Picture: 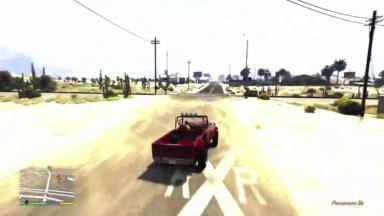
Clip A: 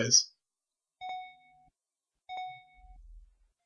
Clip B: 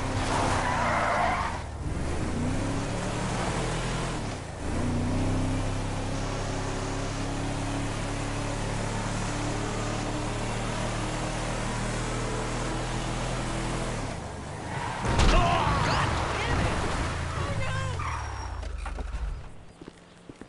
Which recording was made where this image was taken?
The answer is B